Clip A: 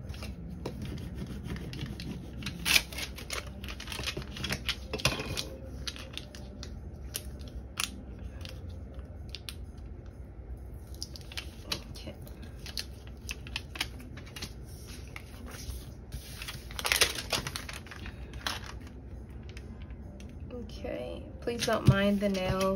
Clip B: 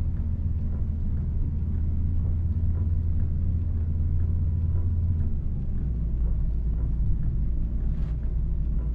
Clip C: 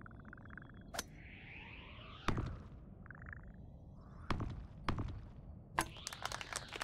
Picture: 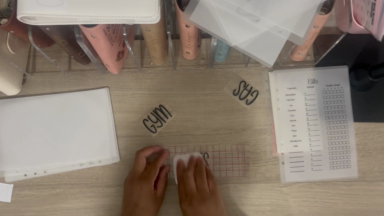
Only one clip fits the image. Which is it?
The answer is A